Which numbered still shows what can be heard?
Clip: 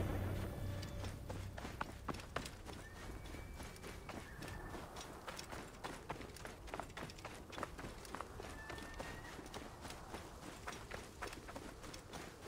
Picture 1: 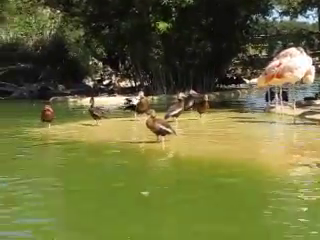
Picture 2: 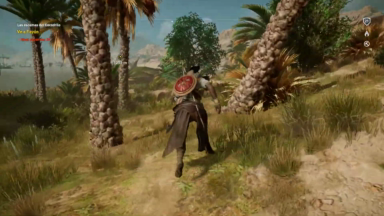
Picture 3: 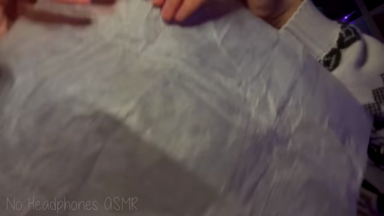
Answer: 2